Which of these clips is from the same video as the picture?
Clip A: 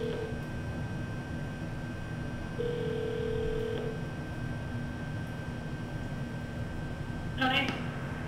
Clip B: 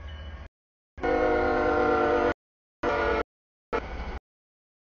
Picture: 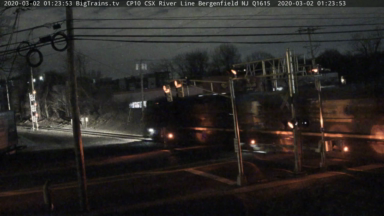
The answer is B